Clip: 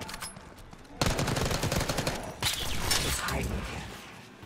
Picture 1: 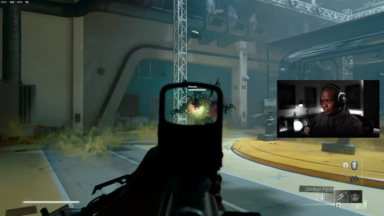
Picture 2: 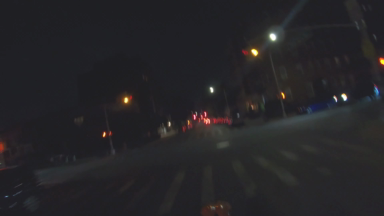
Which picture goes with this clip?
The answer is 1